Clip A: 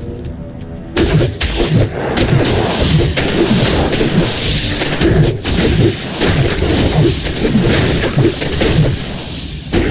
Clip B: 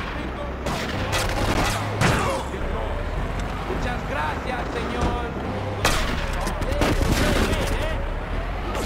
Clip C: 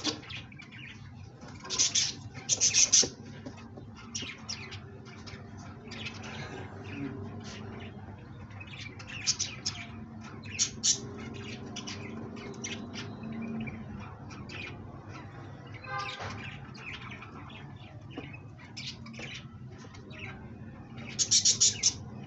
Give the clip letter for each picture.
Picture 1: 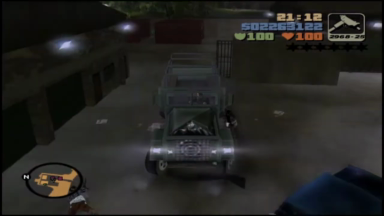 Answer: B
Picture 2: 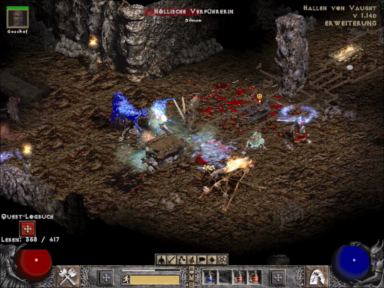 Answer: A